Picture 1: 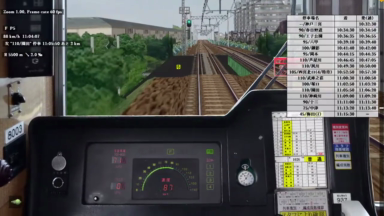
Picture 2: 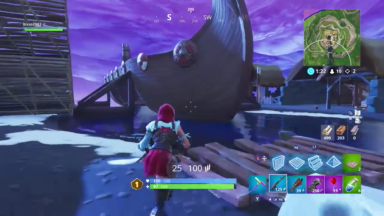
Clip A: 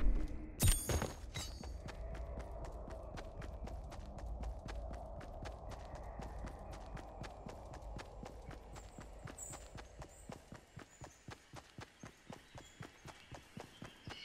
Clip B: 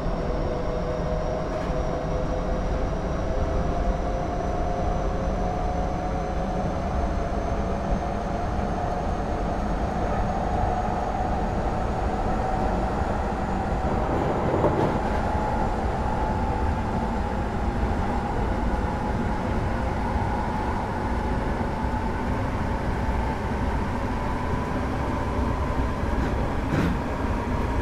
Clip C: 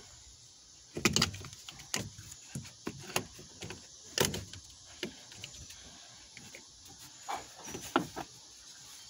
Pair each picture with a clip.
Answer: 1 B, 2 A